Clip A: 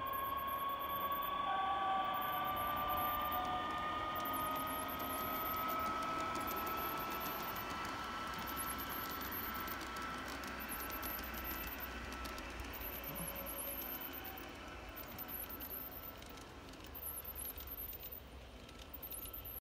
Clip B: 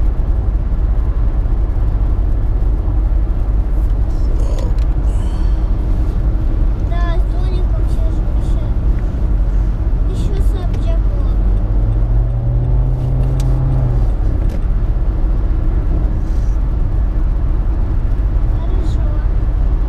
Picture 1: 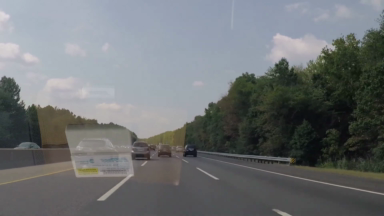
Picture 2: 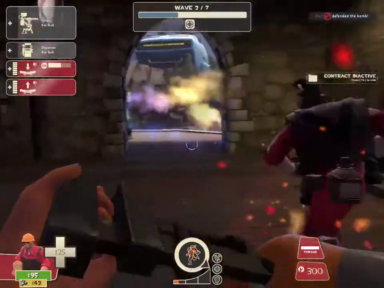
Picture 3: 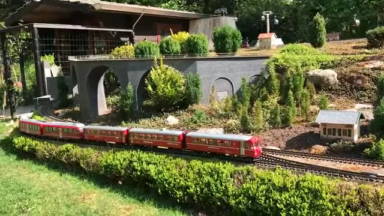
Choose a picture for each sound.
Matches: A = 3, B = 1